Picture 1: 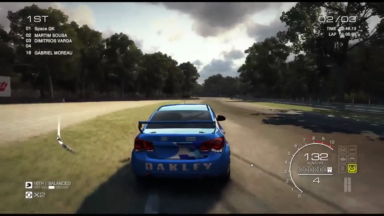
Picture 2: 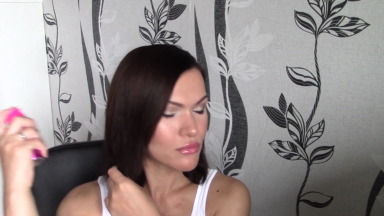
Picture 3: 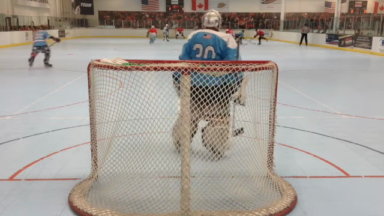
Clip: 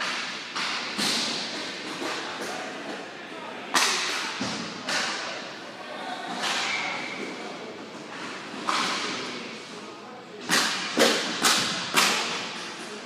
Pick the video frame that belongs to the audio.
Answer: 3